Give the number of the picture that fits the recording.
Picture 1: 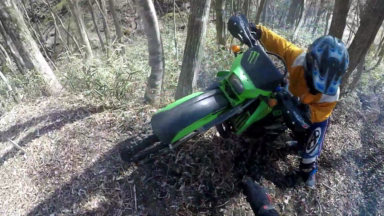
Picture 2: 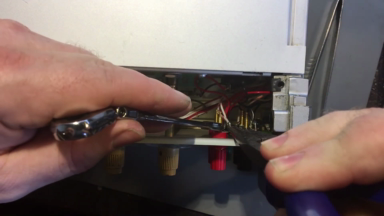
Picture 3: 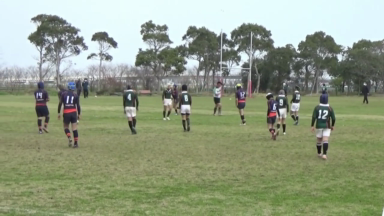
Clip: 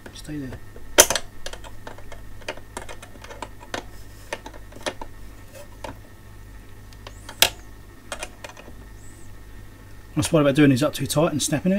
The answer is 2